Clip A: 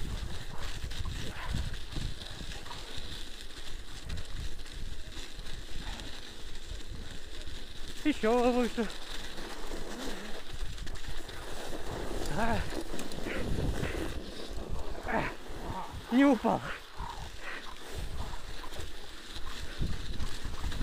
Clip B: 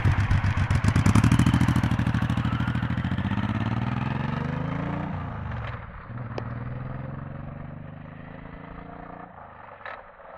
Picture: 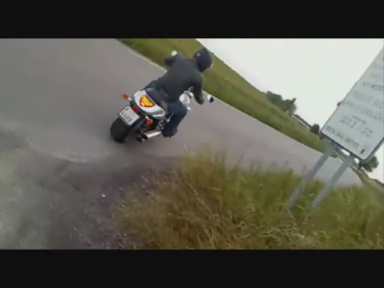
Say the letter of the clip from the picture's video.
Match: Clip B